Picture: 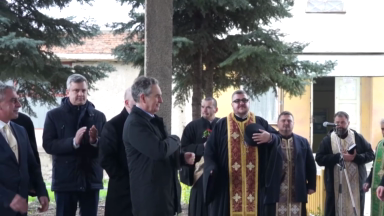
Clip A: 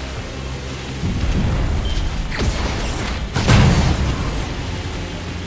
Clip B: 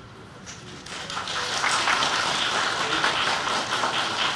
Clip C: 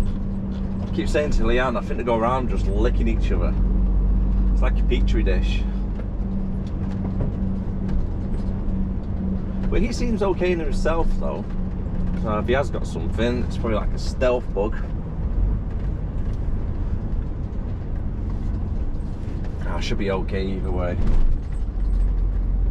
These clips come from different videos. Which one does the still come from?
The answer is B